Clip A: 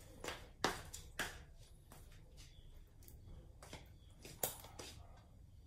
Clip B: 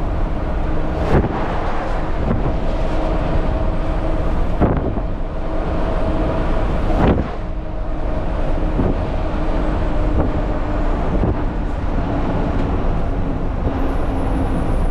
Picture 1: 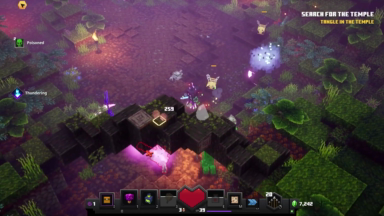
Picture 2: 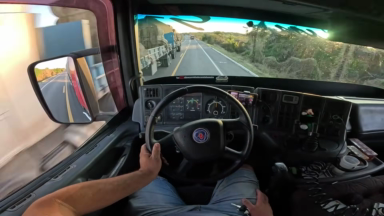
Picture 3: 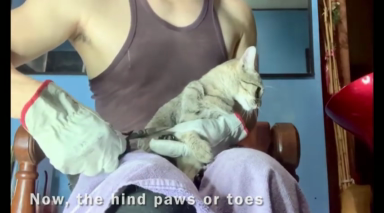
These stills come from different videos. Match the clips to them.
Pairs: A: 3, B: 2